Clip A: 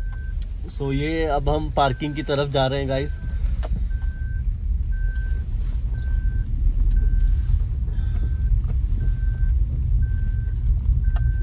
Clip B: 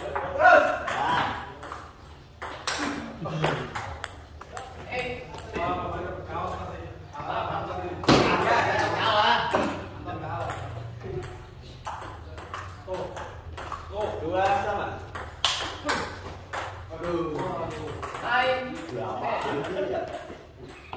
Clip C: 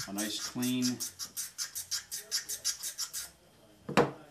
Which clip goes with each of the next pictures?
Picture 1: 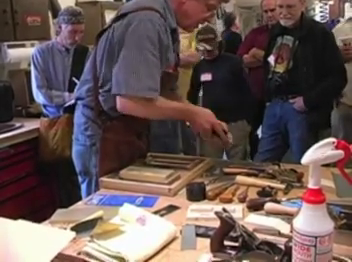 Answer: C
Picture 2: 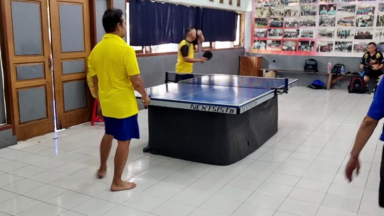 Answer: B